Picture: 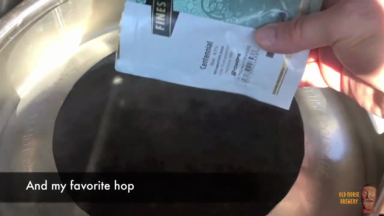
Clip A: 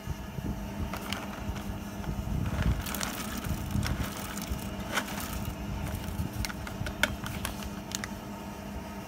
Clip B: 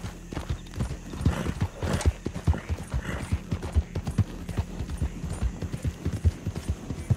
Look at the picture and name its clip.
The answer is A